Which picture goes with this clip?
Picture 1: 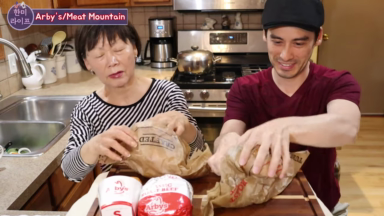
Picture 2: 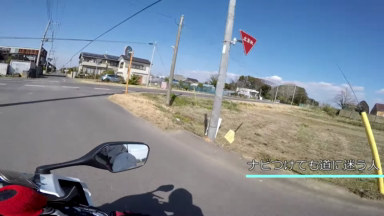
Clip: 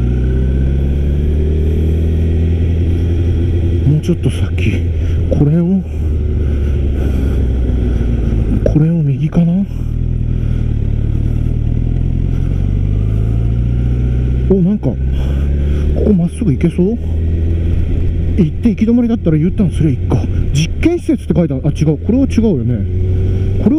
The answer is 2